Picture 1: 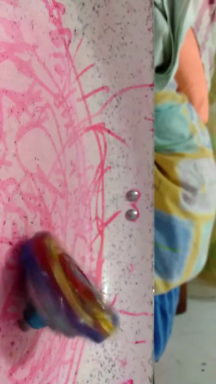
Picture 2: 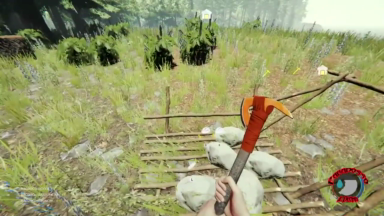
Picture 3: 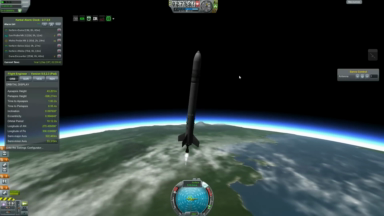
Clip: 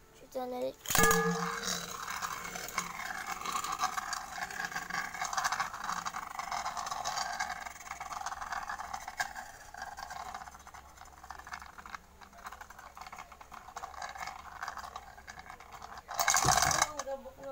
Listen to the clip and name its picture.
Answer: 1